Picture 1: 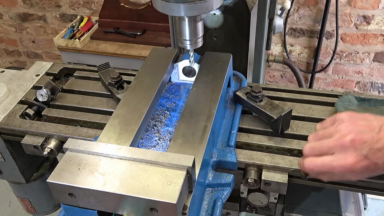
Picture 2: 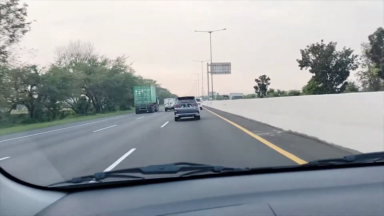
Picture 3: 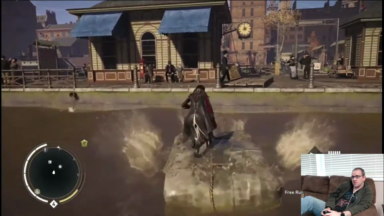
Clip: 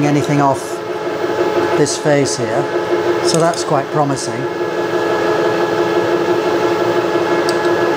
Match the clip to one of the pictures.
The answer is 1